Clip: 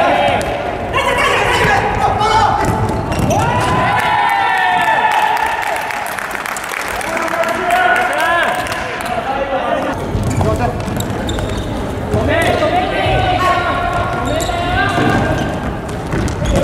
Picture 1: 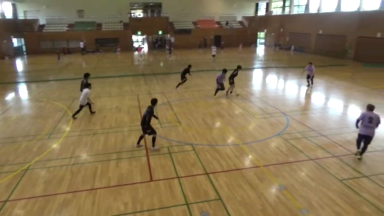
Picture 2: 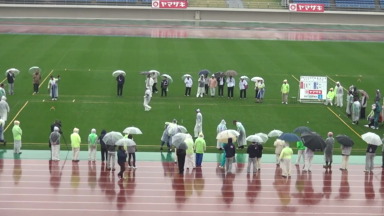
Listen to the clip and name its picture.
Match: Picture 1